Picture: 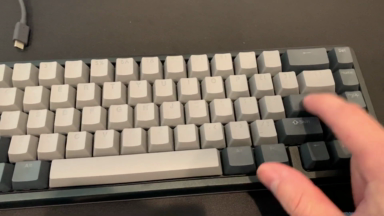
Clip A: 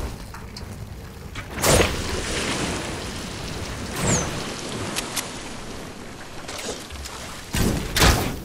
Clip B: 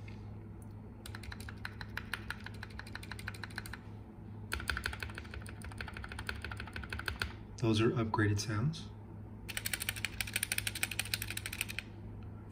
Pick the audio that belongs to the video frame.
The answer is B